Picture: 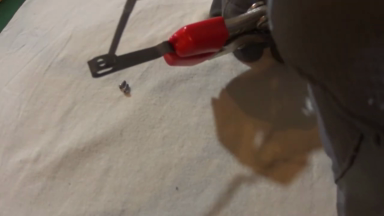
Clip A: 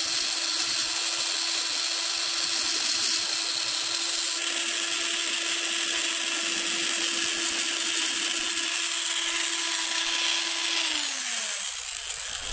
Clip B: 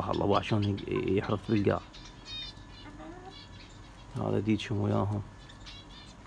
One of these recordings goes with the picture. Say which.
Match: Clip A